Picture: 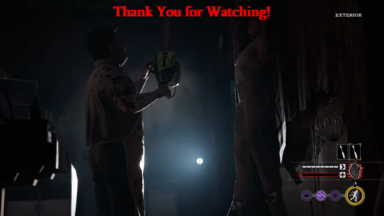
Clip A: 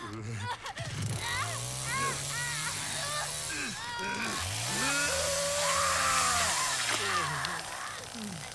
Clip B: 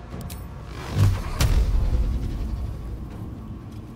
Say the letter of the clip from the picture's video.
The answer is A